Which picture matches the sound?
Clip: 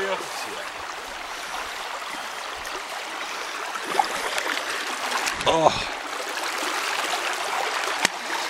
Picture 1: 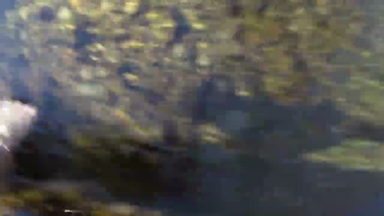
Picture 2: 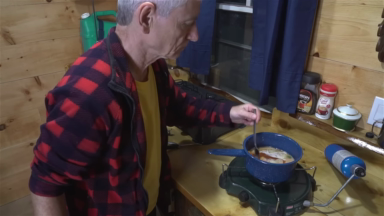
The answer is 1